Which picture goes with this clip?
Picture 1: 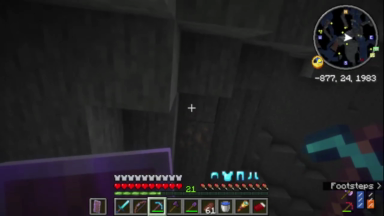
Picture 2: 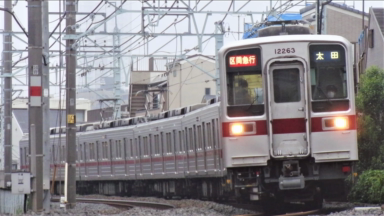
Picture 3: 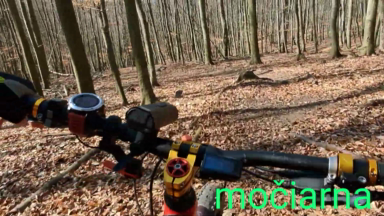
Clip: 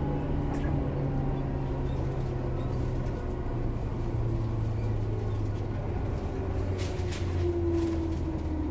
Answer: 2